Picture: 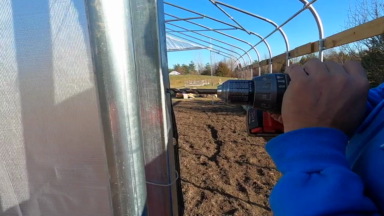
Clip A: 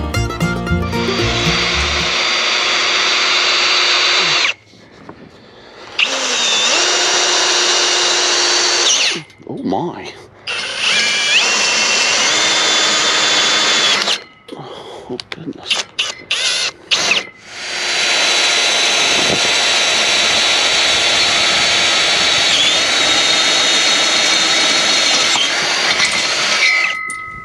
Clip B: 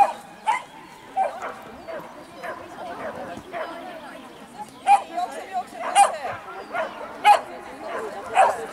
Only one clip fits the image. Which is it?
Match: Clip A